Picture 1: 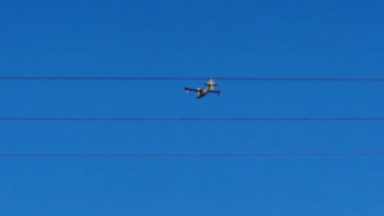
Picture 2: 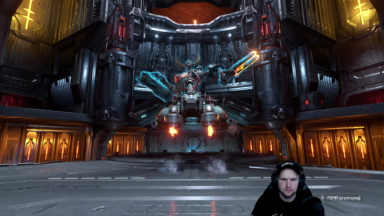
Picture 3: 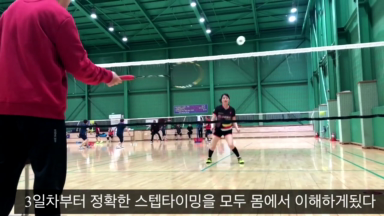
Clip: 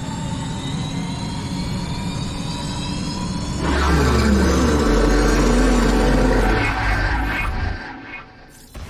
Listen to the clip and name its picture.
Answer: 2